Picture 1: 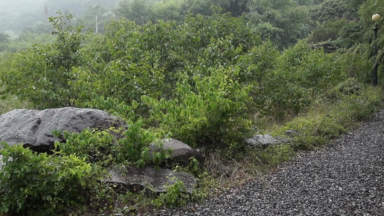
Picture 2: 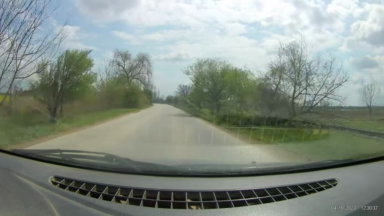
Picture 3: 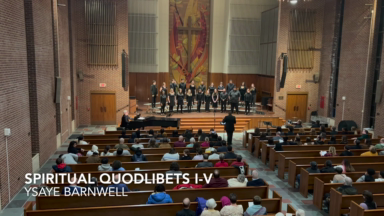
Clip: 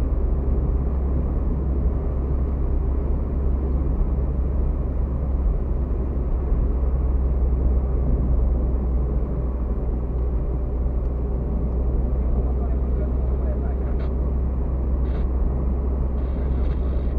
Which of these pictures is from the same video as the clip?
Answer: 2